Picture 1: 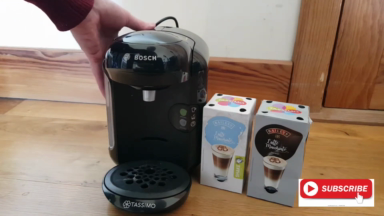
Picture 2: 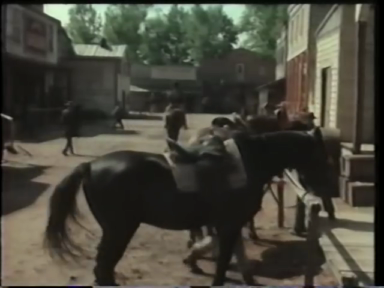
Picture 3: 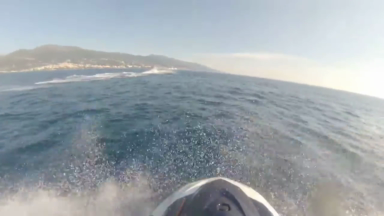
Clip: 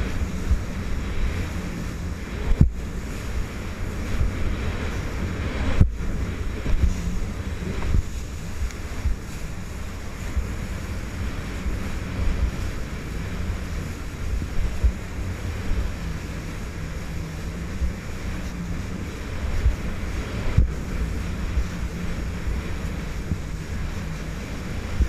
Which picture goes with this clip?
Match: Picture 3